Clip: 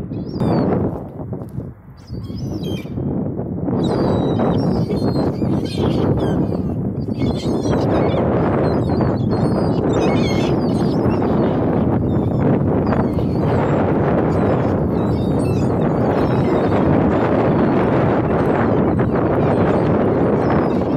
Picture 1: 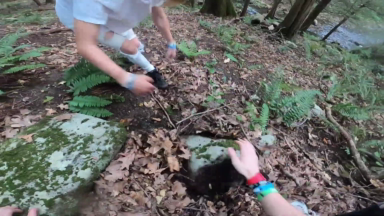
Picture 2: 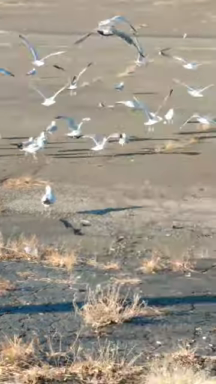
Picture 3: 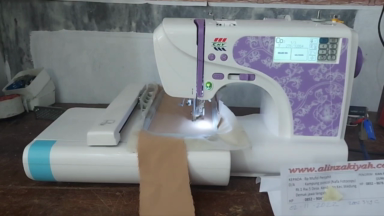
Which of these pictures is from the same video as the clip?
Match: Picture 2